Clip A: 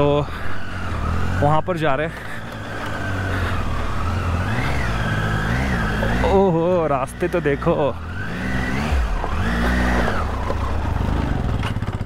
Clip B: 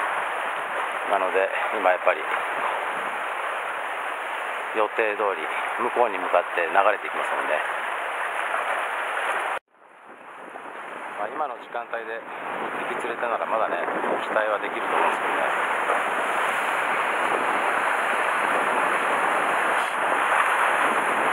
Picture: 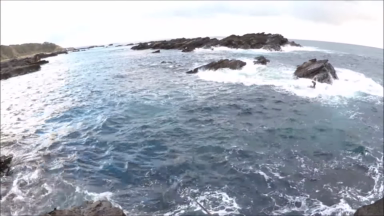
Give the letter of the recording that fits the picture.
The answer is B